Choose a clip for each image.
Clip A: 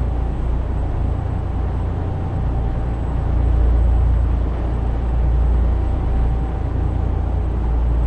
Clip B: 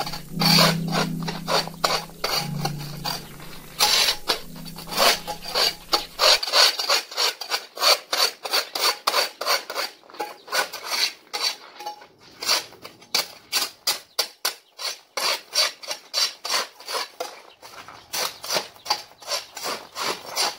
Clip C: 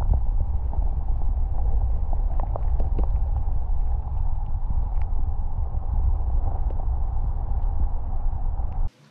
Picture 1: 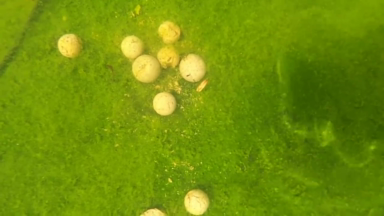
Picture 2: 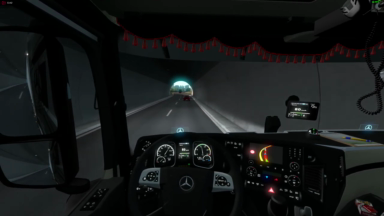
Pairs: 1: C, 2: A